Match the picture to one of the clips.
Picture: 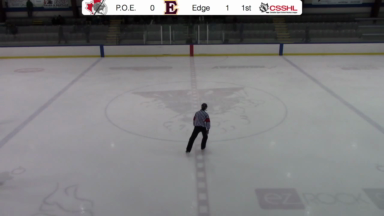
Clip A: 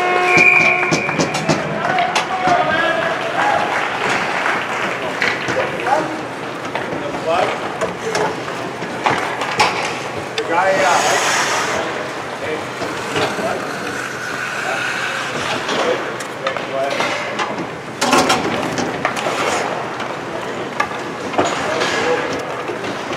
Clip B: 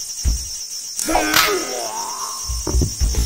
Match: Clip A